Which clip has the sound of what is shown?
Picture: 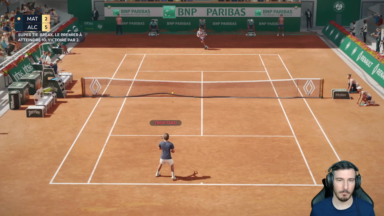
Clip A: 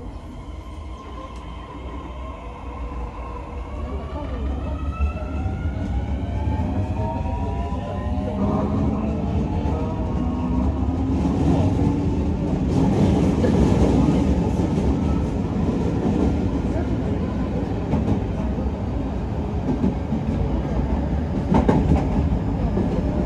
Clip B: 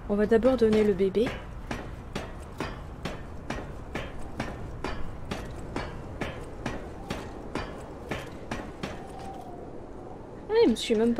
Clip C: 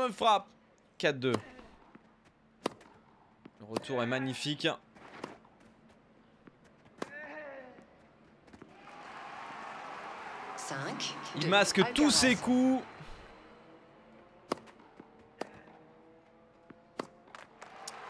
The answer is C